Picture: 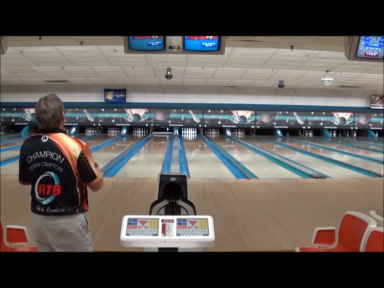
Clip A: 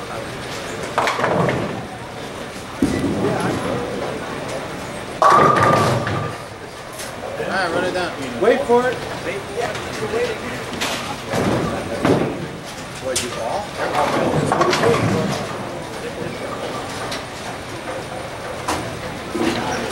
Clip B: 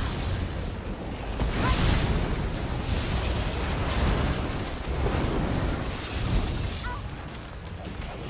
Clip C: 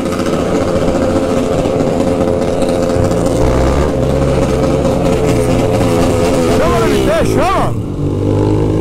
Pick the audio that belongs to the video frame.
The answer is A